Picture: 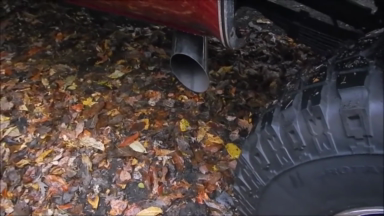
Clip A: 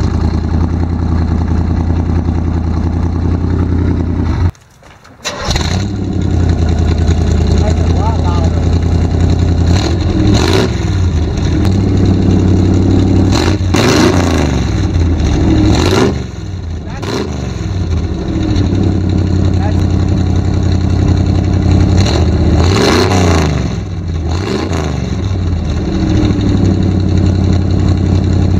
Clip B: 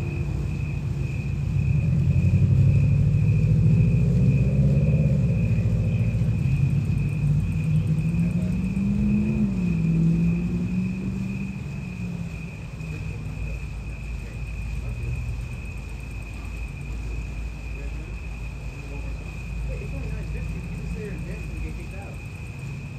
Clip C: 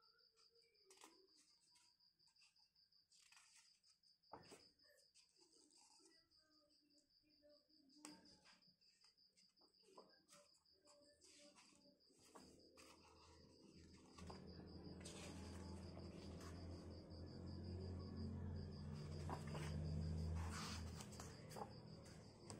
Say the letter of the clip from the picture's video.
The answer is A